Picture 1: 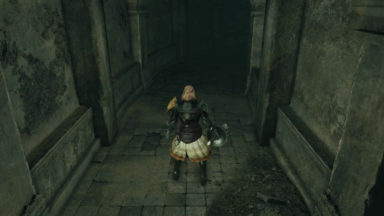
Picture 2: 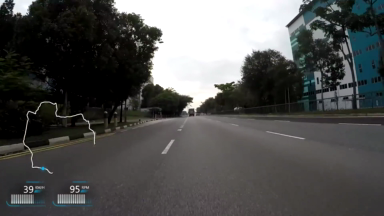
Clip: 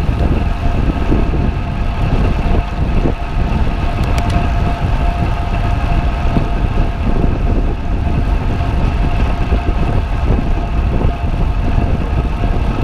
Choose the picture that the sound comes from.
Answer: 2